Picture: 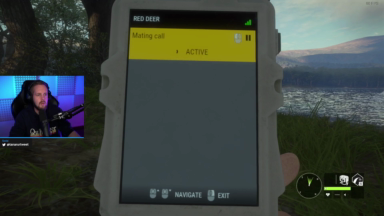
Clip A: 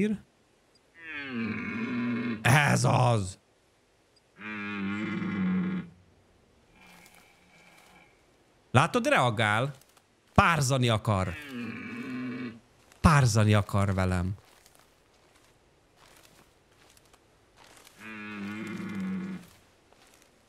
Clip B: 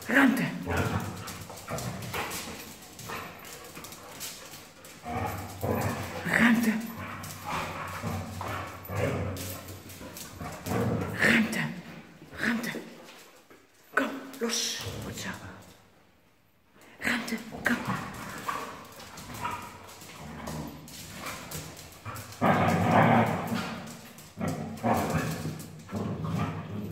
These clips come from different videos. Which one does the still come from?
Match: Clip A